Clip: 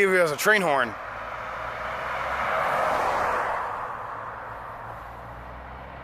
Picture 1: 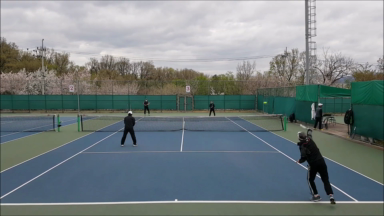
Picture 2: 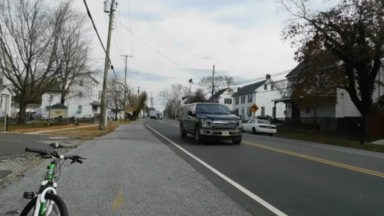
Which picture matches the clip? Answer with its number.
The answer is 2